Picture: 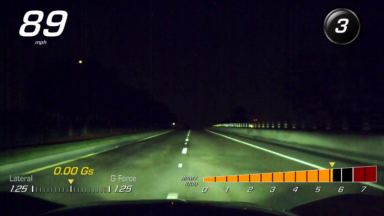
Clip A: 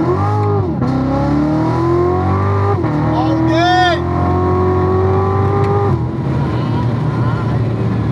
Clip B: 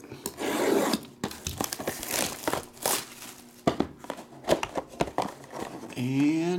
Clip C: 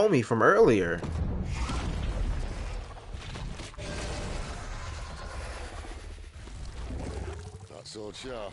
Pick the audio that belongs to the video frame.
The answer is A